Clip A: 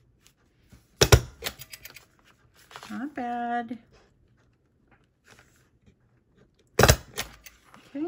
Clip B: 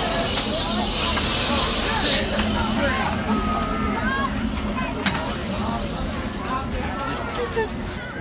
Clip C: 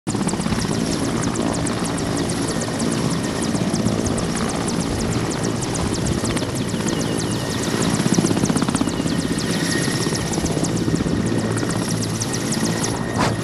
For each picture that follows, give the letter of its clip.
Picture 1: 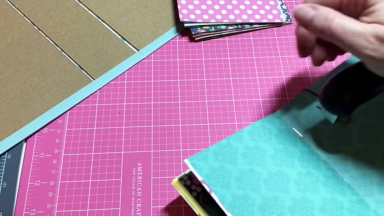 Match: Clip A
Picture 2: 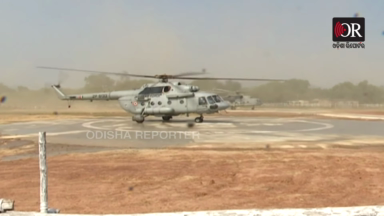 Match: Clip C